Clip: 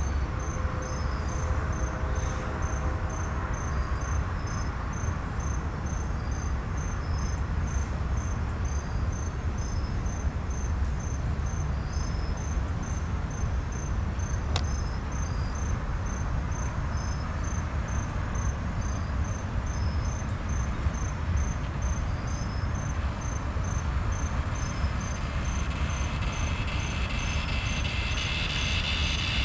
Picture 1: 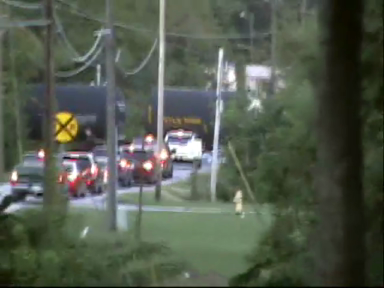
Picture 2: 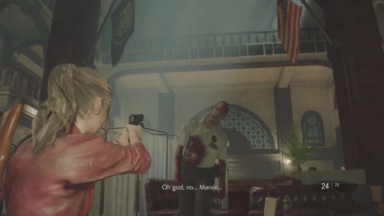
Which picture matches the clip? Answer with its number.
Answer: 1